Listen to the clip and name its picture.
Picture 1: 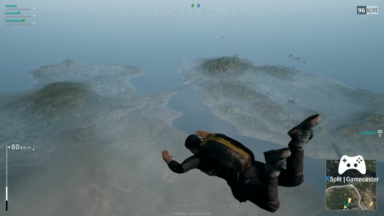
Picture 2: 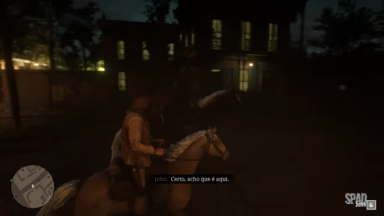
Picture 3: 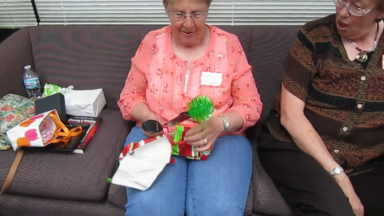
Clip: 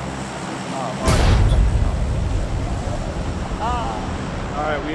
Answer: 1